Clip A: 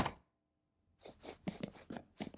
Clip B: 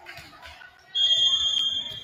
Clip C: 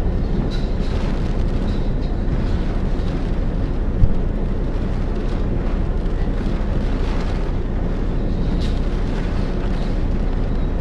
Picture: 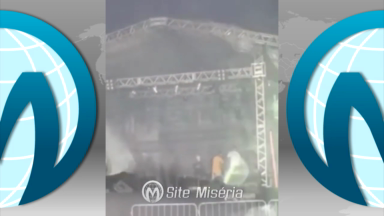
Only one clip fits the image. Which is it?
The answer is C